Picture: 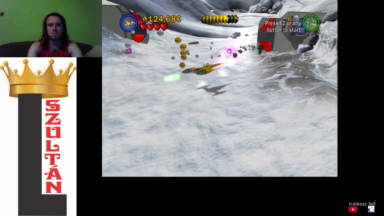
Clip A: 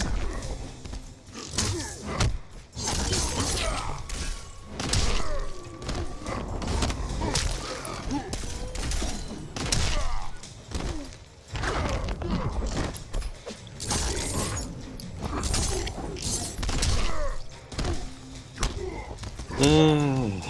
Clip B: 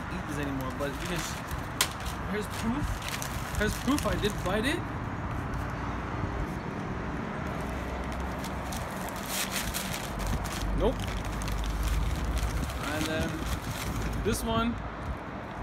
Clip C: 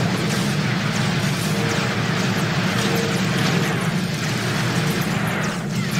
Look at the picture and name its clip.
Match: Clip C